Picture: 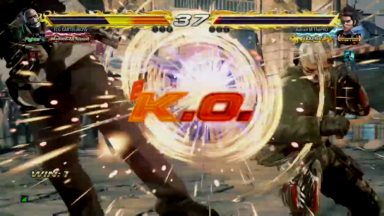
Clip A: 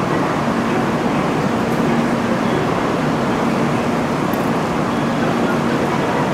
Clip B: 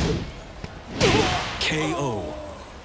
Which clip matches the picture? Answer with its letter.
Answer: B